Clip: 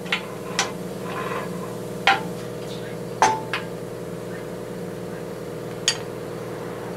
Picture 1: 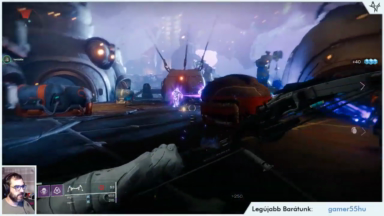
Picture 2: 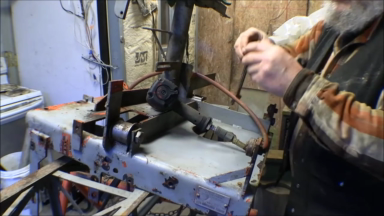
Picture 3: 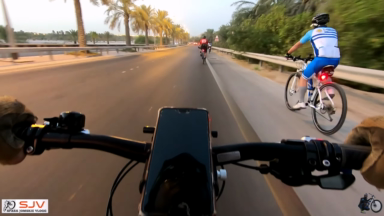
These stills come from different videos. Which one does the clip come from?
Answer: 2